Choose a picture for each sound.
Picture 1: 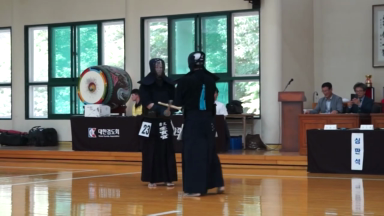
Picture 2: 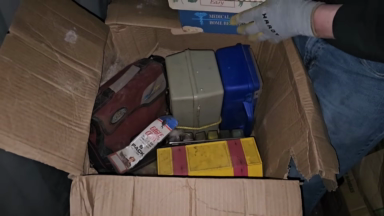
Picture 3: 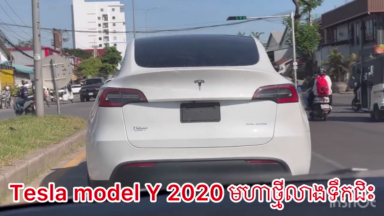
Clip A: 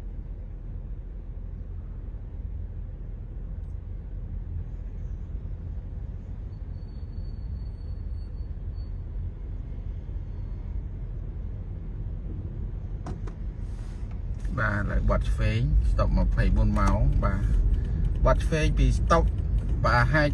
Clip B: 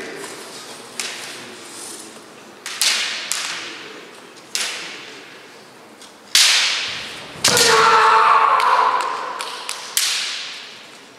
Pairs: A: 3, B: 1